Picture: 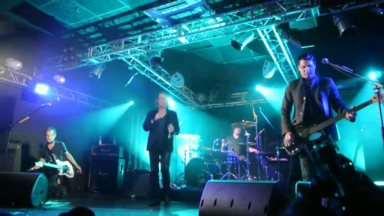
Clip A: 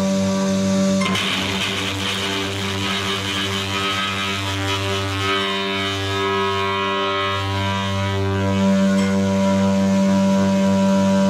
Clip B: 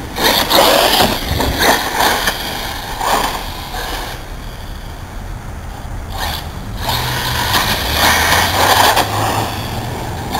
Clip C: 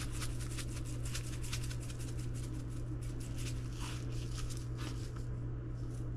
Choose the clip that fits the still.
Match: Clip A